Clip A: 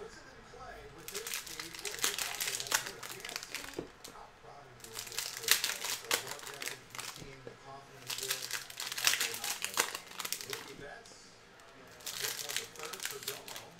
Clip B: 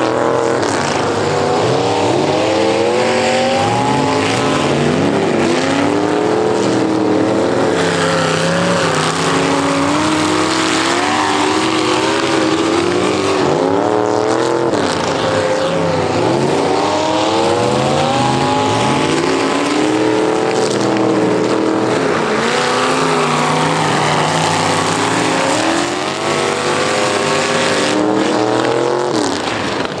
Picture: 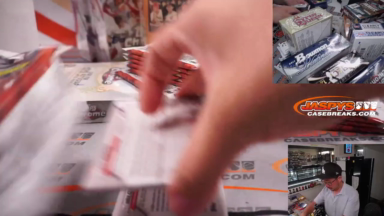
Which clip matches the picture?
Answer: A